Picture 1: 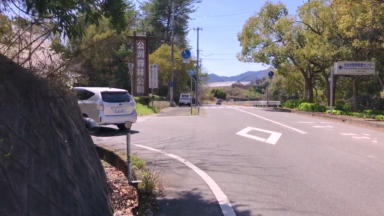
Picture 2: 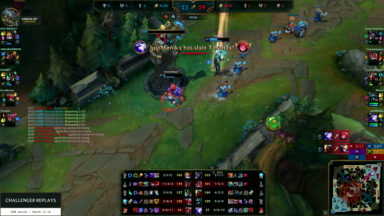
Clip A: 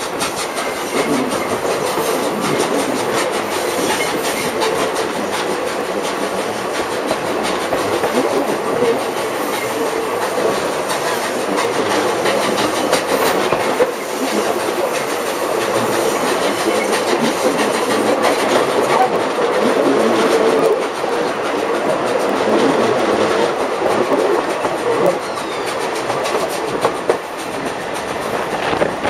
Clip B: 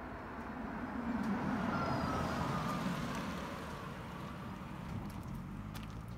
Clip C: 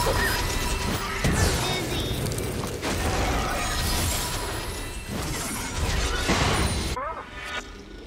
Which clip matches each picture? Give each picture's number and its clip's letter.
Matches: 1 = B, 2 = C